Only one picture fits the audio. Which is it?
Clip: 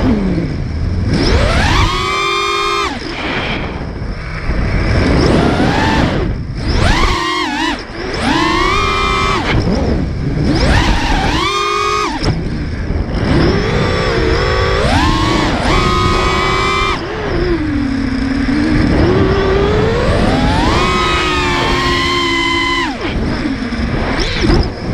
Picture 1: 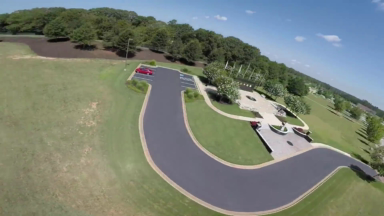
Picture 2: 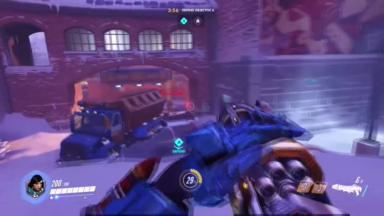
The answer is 1